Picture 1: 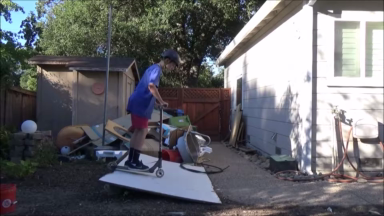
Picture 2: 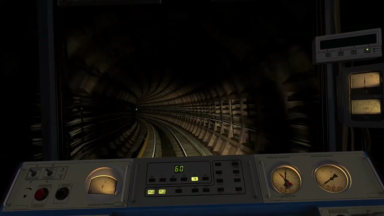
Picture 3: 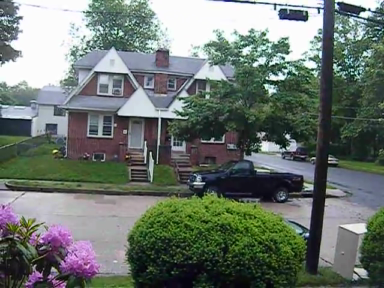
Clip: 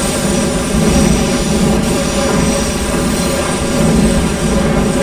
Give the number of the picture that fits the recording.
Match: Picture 2